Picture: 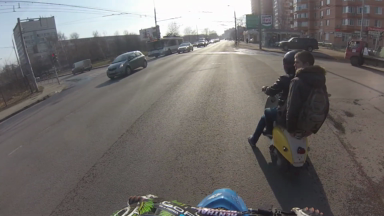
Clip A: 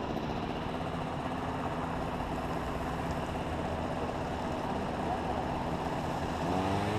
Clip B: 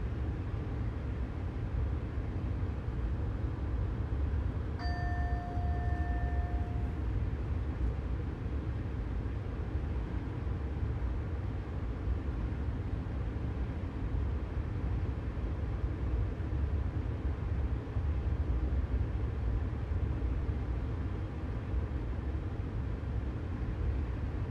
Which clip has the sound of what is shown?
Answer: A